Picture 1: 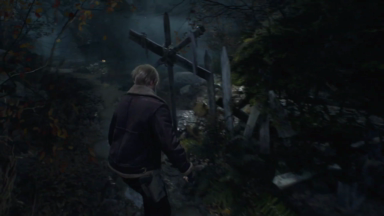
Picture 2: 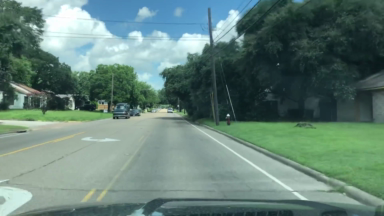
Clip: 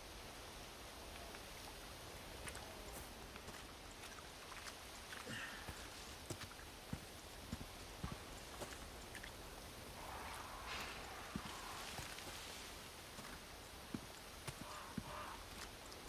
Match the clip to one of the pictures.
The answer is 1